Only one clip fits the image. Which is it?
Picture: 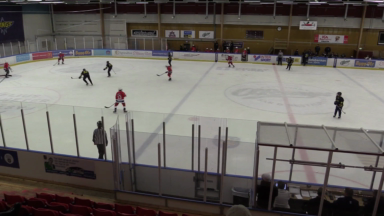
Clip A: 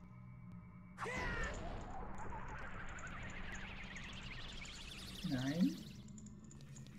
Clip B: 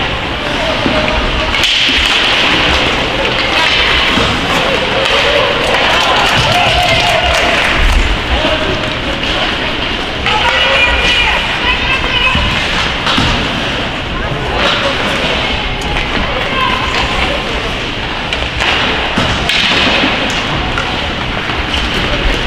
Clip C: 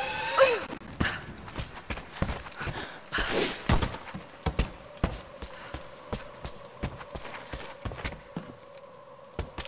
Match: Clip B